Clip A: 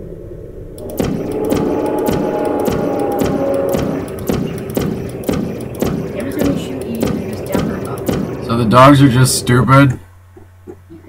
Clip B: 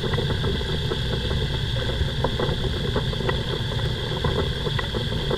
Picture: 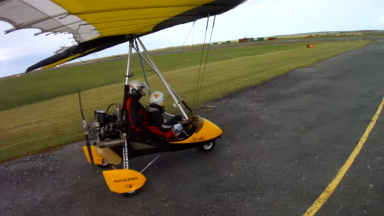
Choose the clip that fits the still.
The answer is B